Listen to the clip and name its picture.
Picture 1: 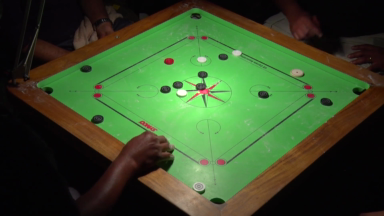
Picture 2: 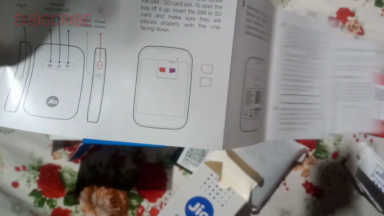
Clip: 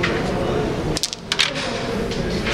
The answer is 1